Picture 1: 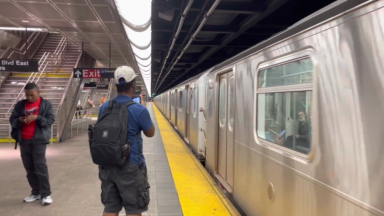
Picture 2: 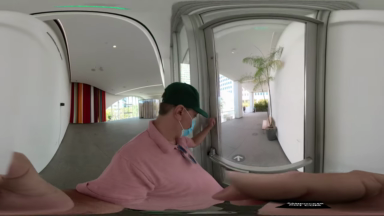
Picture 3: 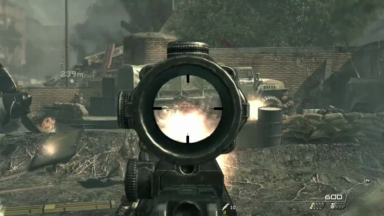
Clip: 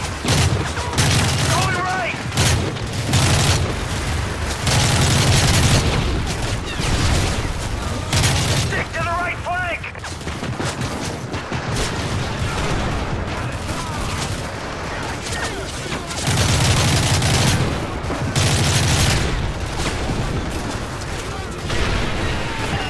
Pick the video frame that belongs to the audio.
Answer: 3